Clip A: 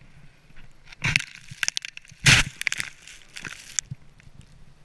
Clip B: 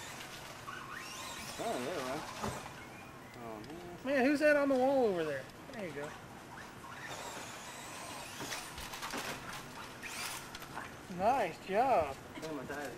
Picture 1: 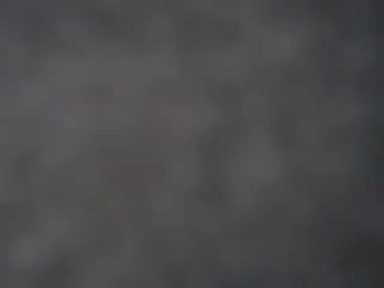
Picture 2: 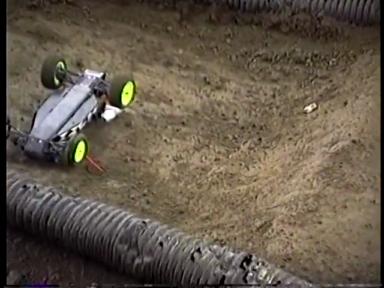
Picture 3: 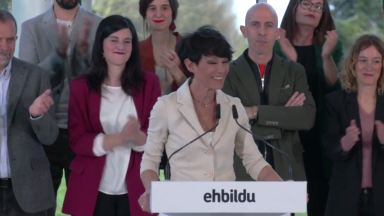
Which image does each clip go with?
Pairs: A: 1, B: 2